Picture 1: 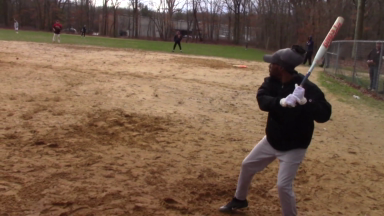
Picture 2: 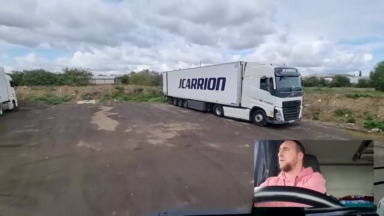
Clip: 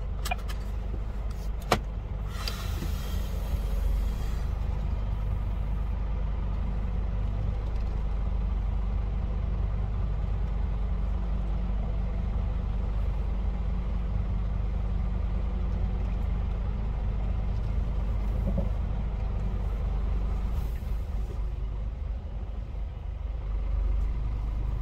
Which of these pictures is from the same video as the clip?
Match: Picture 2